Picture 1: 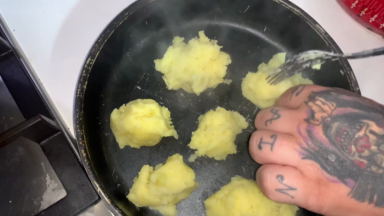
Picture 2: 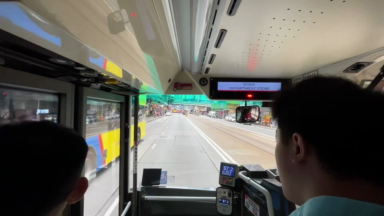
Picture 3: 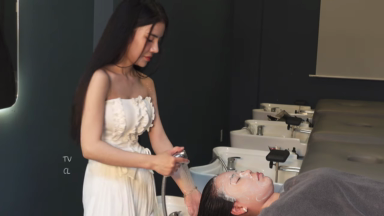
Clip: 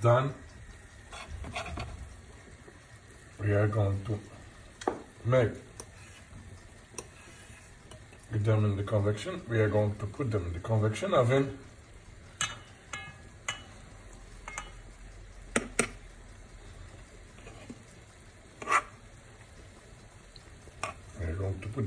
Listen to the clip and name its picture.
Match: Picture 1